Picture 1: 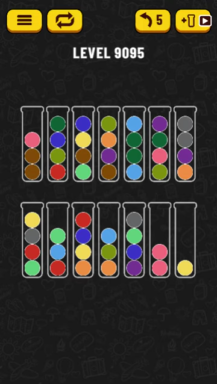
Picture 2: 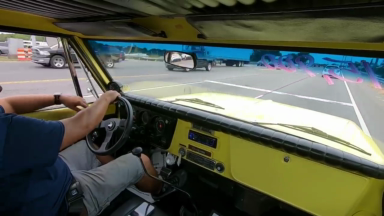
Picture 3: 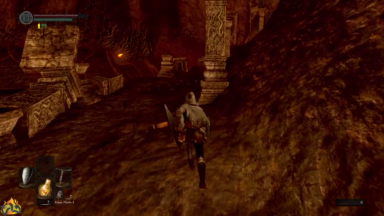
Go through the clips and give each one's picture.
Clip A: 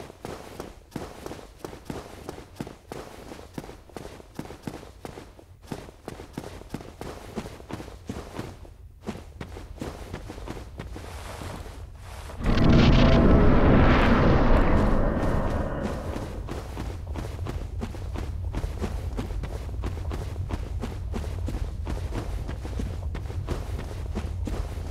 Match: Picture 3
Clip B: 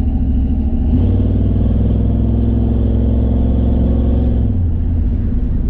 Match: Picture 2